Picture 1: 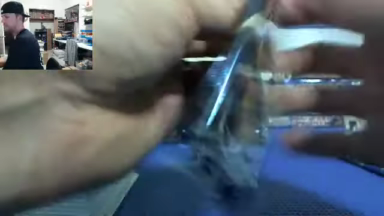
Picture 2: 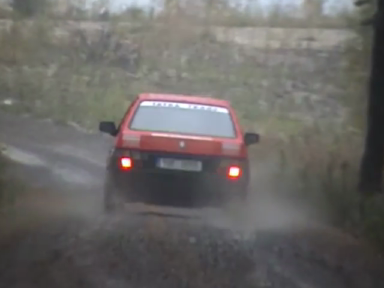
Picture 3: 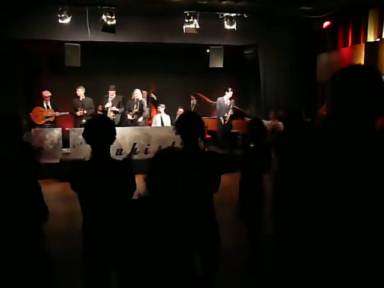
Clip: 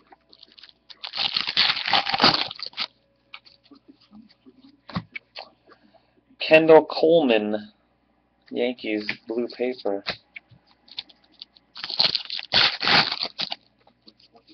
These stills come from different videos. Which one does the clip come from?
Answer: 1